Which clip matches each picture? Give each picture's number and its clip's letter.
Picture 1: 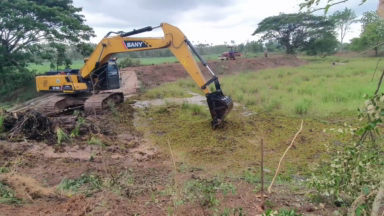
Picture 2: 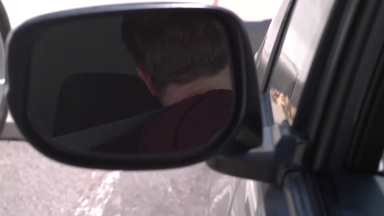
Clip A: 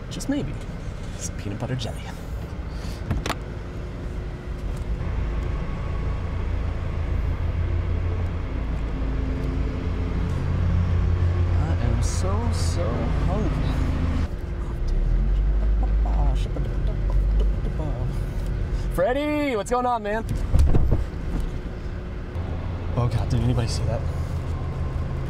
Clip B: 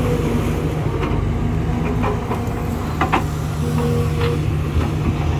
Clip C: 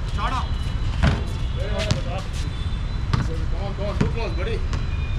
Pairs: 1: B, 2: A